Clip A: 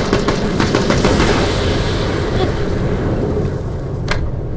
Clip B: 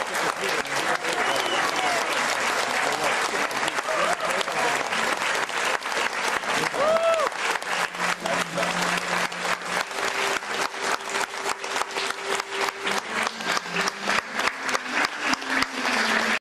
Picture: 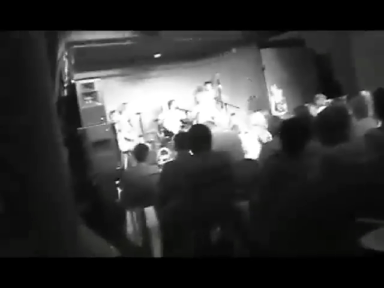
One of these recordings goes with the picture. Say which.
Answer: B